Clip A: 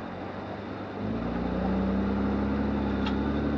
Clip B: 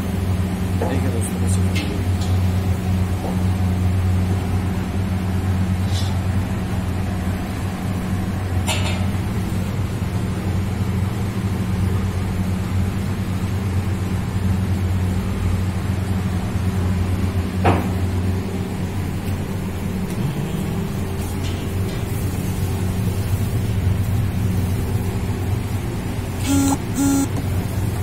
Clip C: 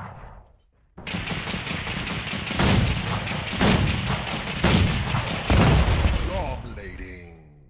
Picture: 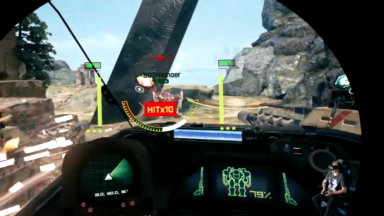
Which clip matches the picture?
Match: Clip C